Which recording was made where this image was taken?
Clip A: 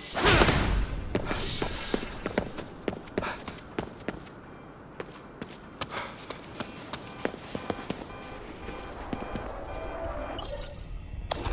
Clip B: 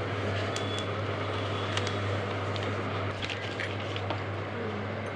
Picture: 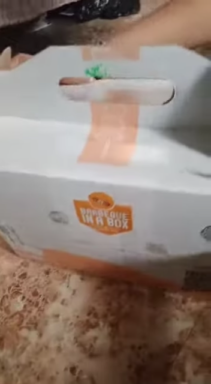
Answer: B